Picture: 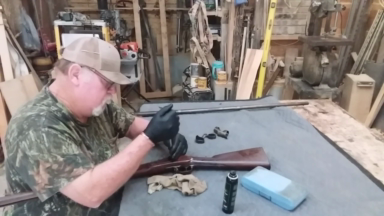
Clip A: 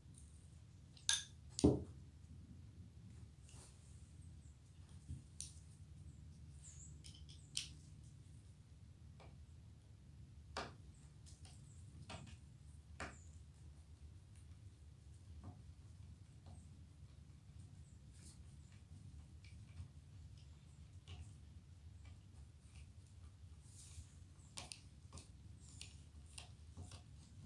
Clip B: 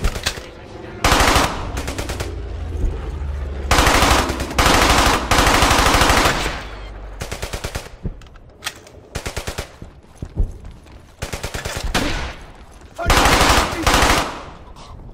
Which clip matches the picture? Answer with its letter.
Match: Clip A